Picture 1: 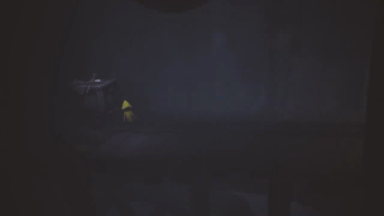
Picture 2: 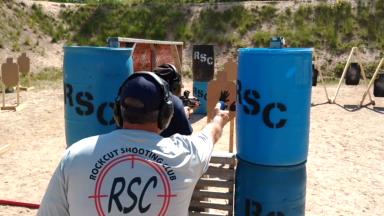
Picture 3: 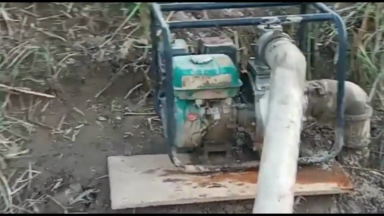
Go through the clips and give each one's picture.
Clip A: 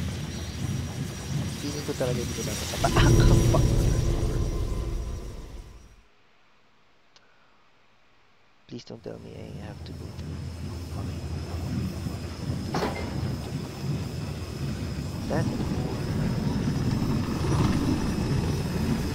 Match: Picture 1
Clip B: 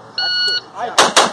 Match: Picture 2